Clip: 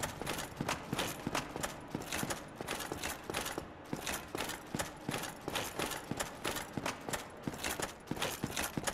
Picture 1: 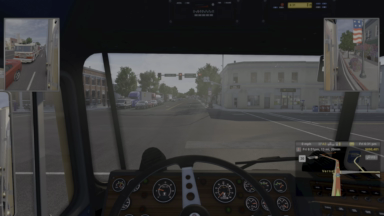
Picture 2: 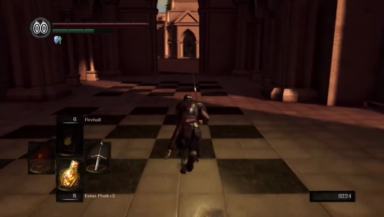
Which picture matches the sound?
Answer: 2